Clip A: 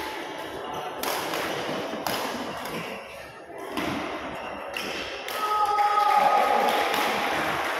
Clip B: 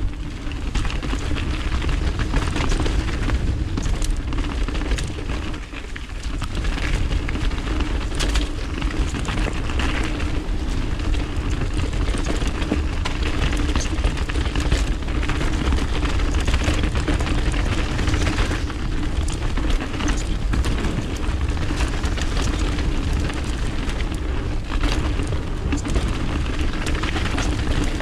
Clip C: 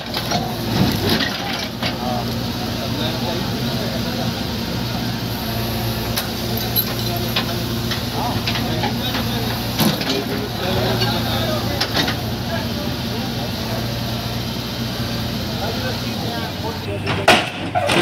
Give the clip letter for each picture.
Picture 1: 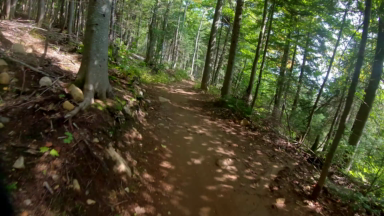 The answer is B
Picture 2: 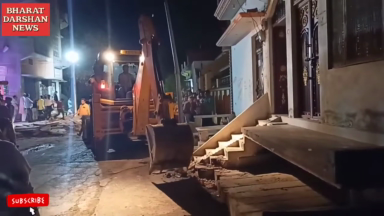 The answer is C